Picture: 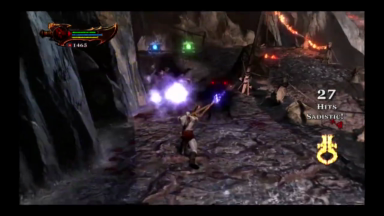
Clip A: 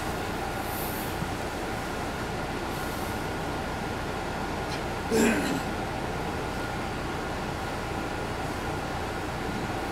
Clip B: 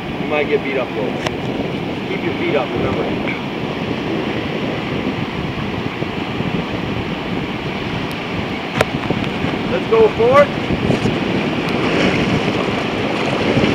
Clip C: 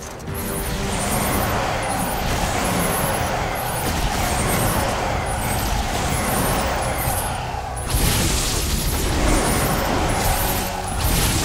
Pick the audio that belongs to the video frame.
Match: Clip C